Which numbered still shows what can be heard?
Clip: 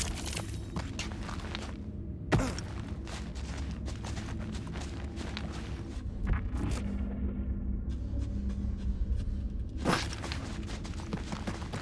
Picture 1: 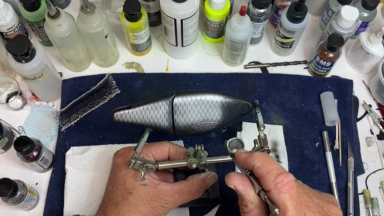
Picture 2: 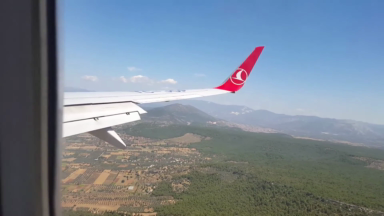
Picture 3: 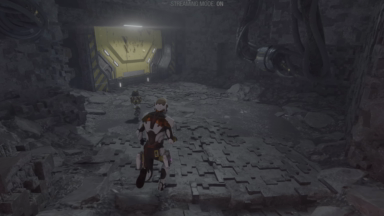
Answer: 3